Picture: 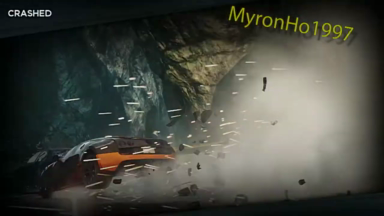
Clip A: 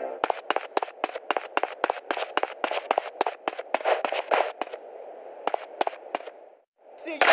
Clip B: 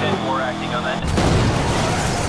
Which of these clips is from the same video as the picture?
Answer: B